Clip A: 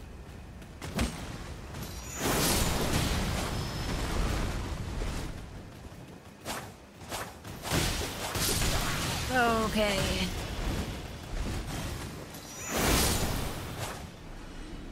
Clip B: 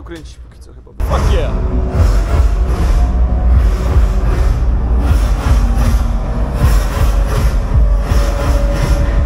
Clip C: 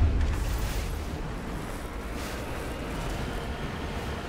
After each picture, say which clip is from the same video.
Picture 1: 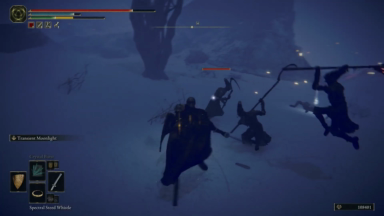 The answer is A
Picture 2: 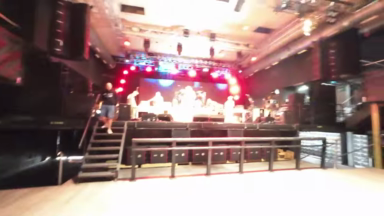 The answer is B